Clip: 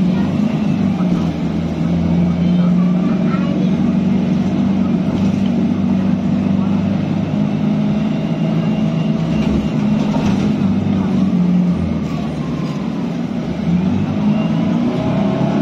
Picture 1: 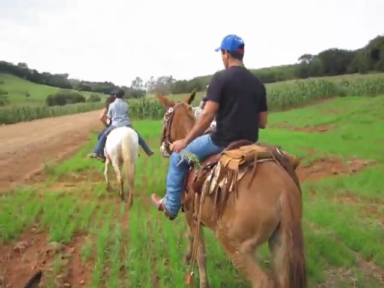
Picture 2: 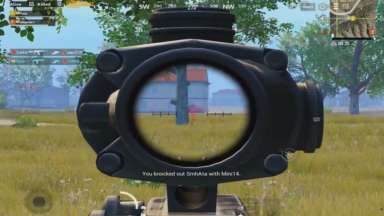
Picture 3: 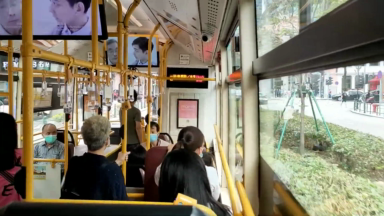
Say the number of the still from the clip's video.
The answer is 3